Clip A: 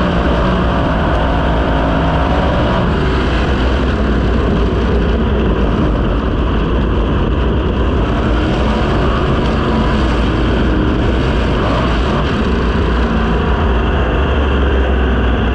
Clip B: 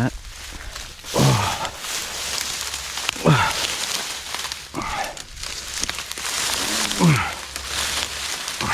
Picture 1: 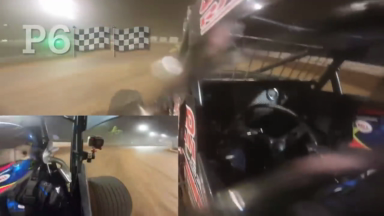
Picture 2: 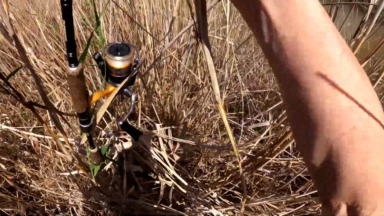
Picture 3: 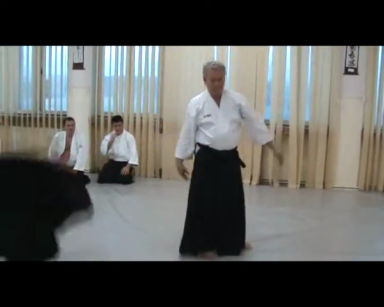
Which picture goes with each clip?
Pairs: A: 1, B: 2